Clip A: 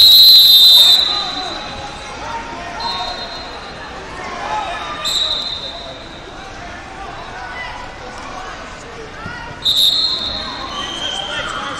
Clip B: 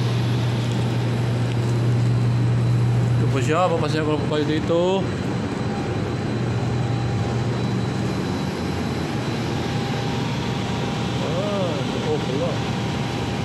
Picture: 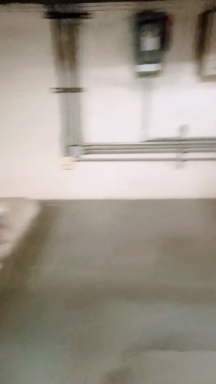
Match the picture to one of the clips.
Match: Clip B